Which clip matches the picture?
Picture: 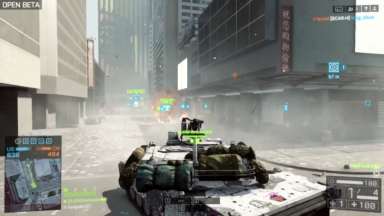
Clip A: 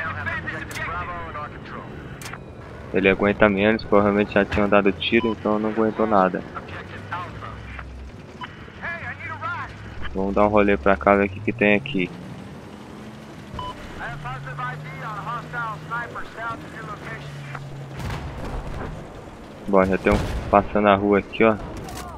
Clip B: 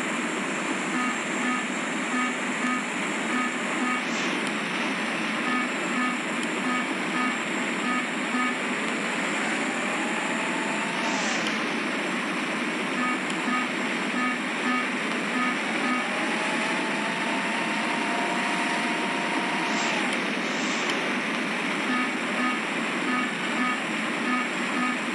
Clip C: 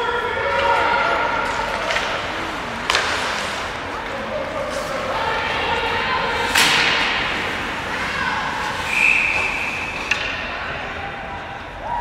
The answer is A